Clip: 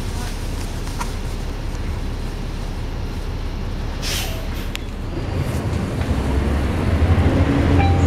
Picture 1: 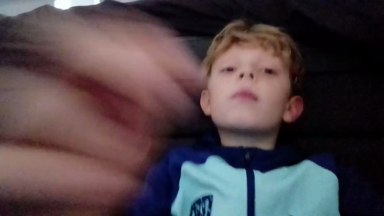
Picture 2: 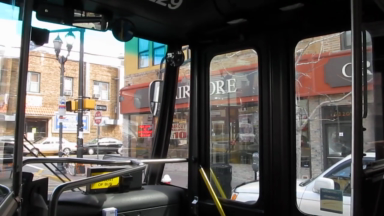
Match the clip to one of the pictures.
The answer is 2